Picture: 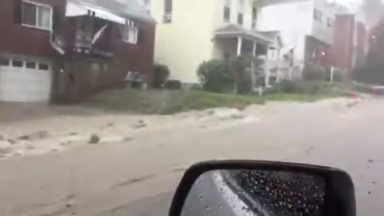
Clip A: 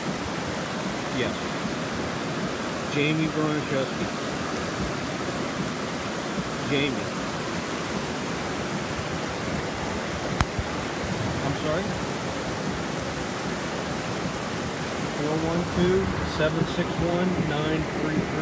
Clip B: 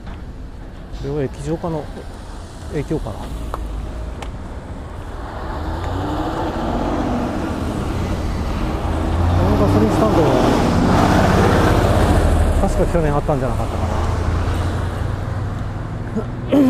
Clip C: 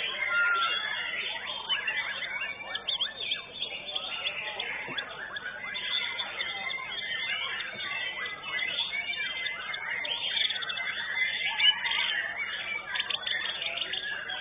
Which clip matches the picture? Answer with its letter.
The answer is A